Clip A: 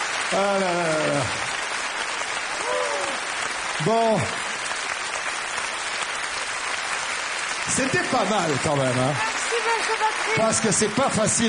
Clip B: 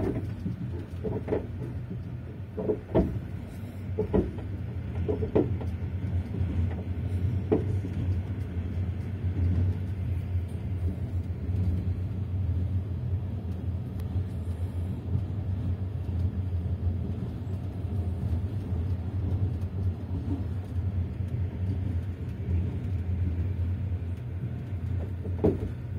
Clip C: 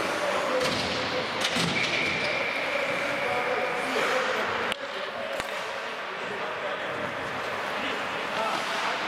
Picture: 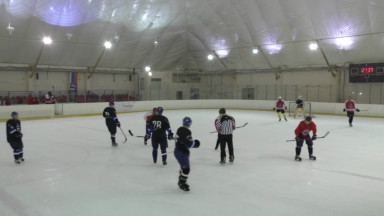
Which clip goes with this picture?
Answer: C